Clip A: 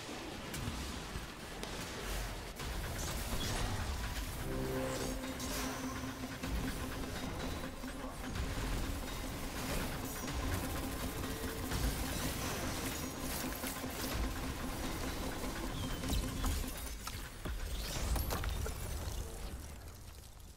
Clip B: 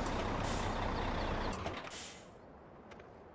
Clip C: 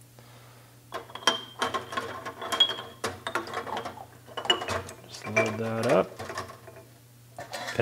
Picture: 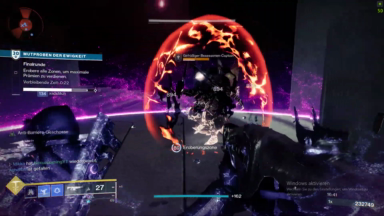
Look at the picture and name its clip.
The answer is A